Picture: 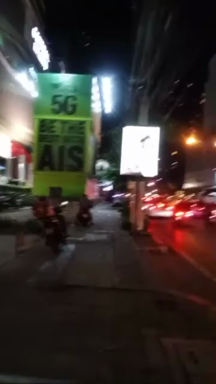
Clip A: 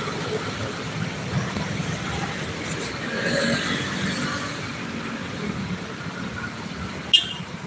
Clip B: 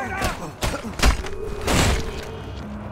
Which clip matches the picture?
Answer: A